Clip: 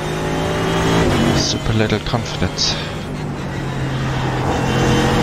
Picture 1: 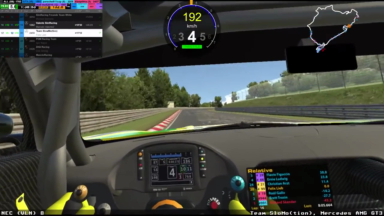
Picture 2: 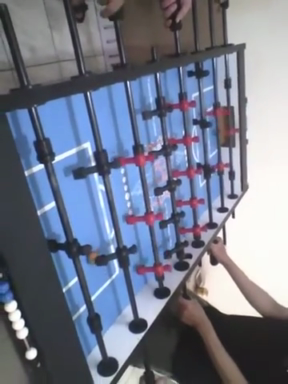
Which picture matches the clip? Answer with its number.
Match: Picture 1